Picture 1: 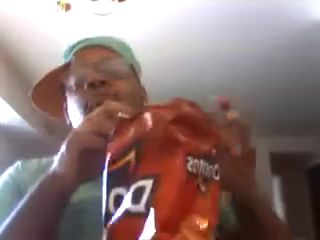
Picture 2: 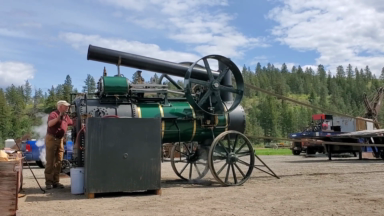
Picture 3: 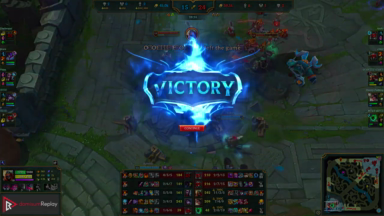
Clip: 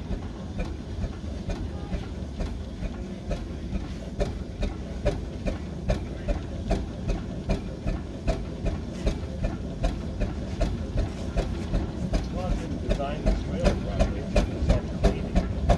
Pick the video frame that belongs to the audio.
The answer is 2